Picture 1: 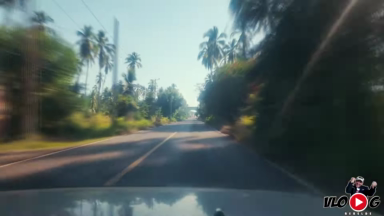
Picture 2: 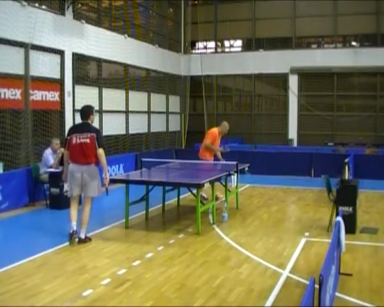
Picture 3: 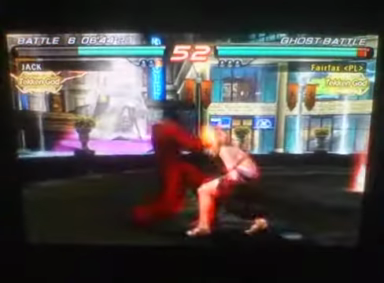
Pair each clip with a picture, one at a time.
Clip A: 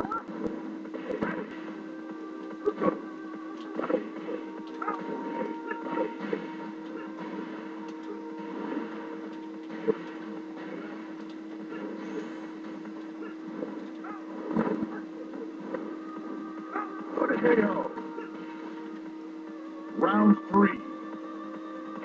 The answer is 3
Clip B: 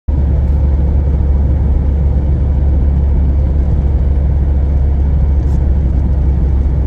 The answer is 1